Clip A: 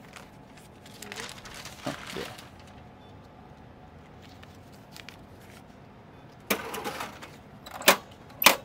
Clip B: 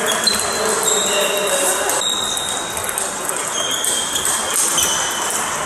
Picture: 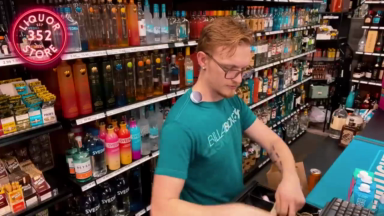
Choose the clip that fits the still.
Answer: A